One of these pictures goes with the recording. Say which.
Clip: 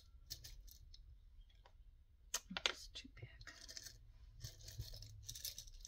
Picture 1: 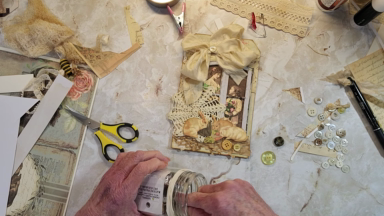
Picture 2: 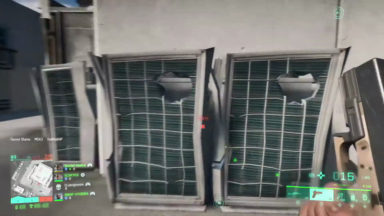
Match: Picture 1